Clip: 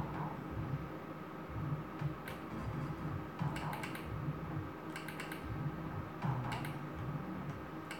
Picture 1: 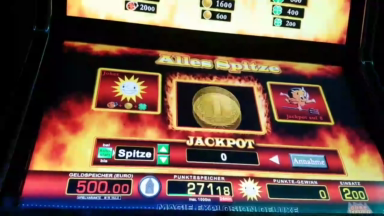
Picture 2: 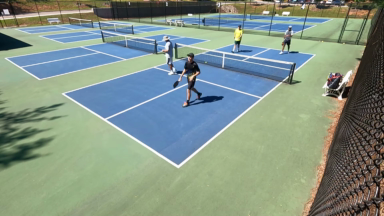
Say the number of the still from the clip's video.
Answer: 1